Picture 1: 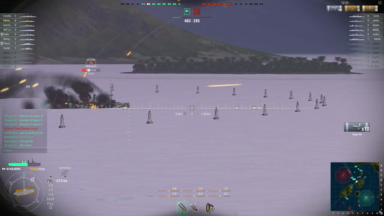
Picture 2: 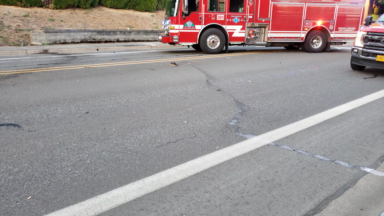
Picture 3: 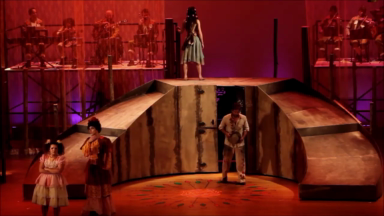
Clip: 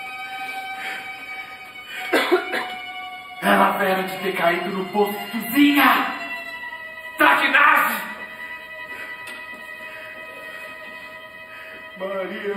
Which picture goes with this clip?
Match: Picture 3